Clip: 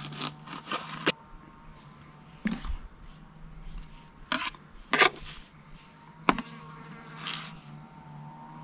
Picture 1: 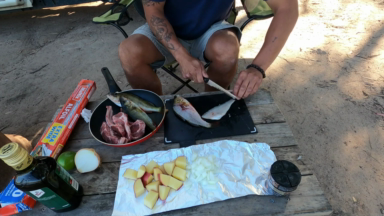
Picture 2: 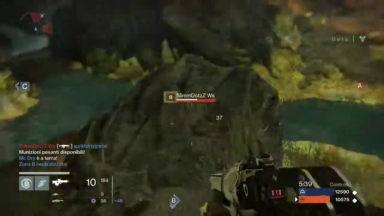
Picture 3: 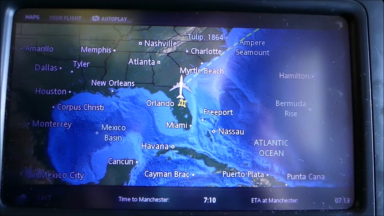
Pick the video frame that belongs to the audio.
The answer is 1